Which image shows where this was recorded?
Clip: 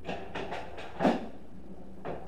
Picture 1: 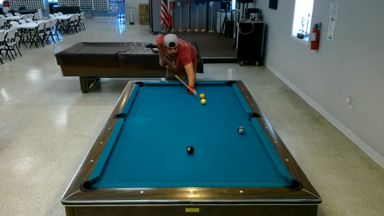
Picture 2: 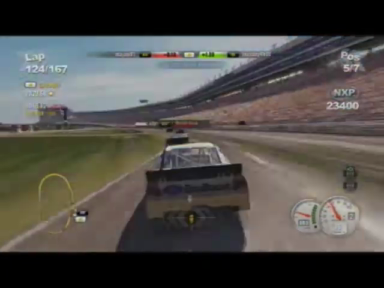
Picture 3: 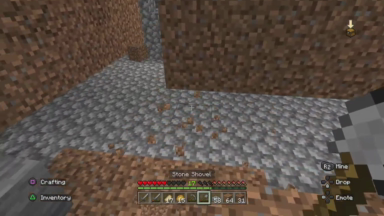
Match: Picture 1